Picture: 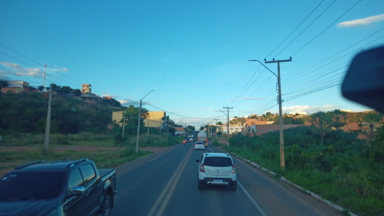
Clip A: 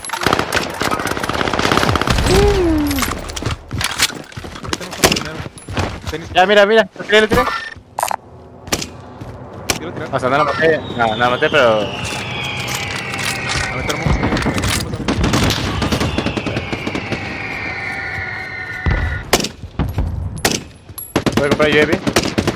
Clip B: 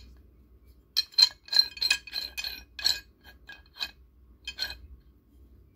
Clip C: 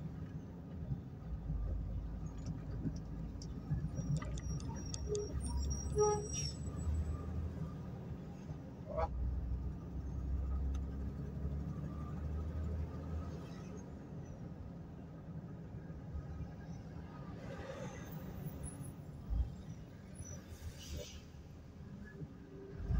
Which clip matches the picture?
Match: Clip C